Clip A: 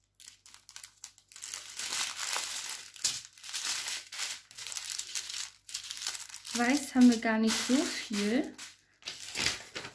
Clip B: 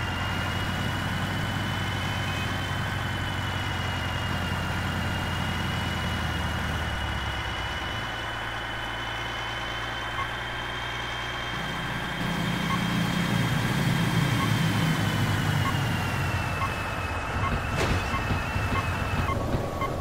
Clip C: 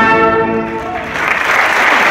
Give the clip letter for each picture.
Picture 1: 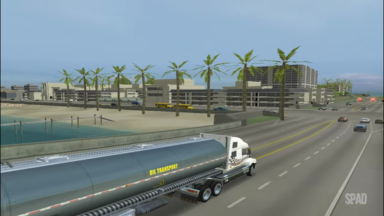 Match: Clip B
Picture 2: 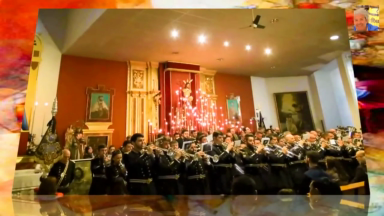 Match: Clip C